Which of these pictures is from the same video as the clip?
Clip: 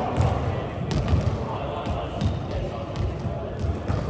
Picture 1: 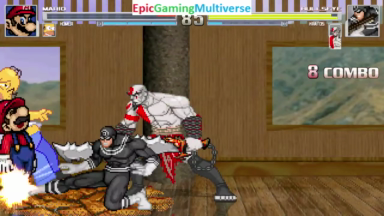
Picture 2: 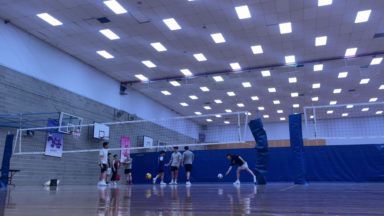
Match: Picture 2